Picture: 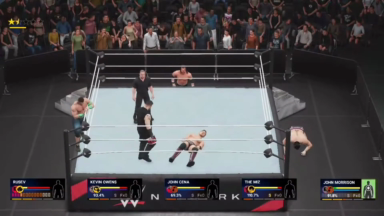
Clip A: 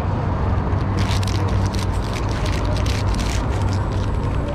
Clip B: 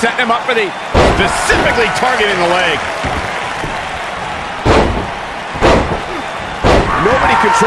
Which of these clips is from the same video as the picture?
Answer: B